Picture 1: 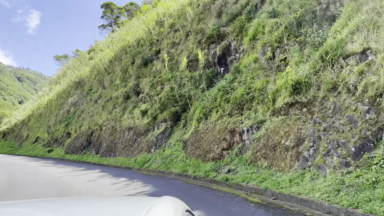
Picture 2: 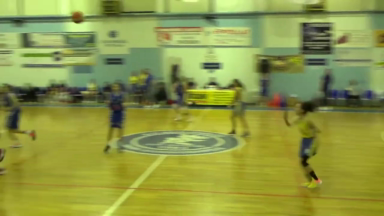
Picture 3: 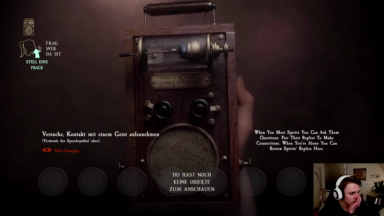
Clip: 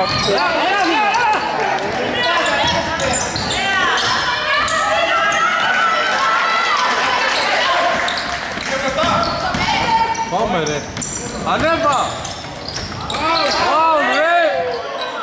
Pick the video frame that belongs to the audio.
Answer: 2